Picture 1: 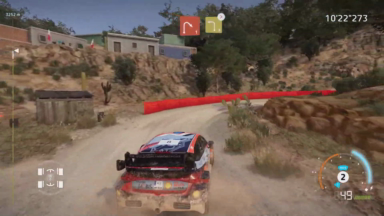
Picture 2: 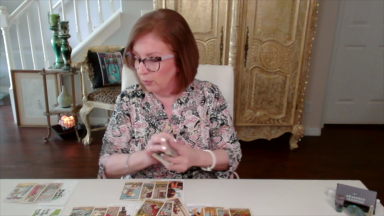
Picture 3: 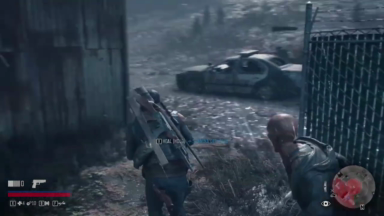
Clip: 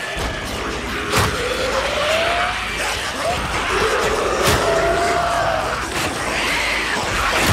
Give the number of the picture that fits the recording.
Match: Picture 3